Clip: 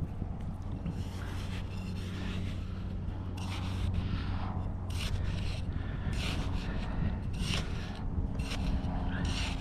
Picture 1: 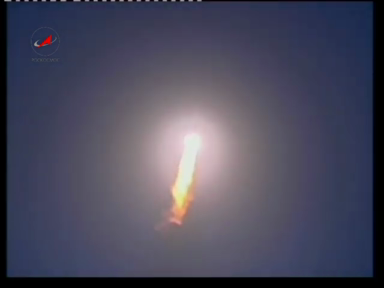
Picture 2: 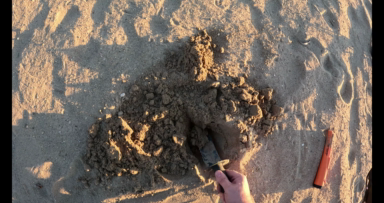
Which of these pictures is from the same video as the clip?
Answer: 2